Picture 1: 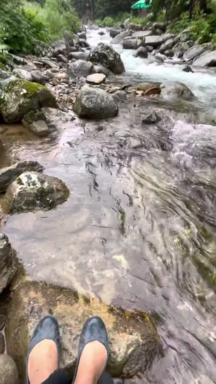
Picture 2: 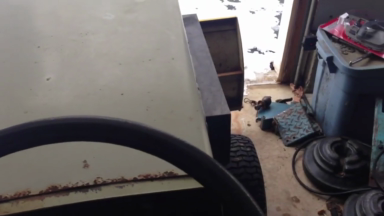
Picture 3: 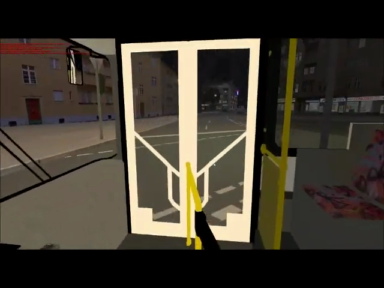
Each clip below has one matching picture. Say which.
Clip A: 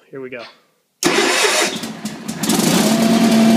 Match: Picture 2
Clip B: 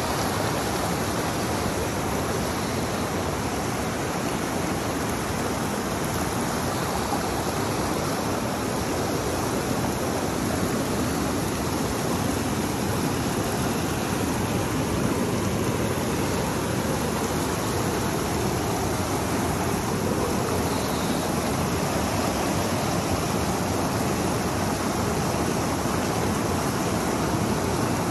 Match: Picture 1